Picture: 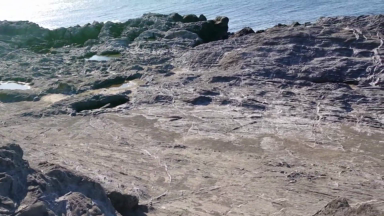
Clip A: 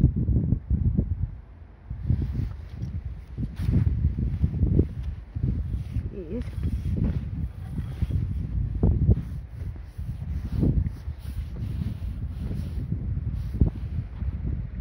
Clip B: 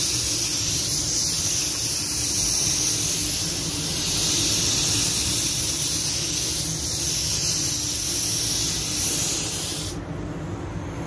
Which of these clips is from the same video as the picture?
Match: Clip A